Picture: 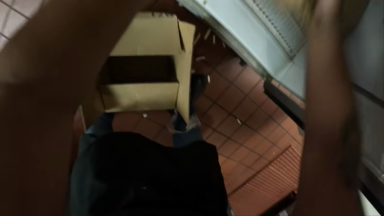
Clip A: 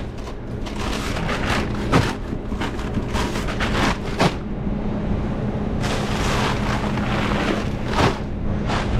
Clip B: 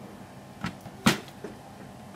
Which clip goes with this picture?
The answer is A